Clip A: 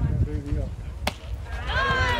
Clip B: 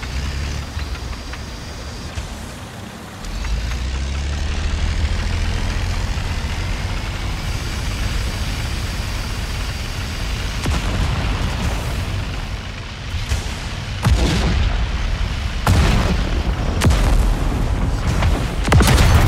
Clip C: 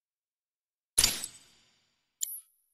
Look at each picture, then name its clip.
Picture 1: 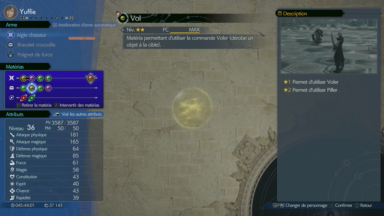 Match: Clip C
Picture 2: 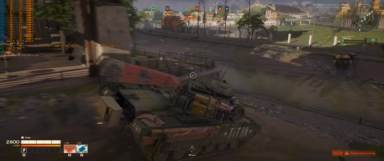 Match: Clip B